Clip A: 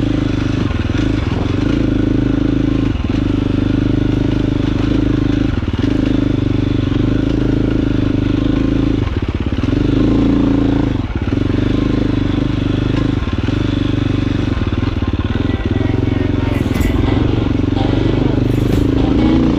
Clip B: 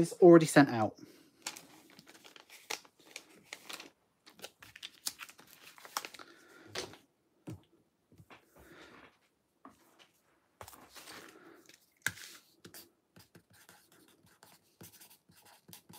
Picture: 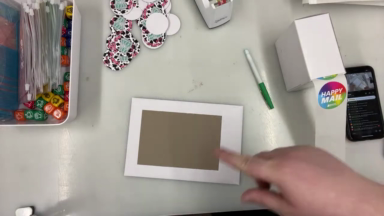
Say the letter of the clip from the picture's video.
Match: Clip B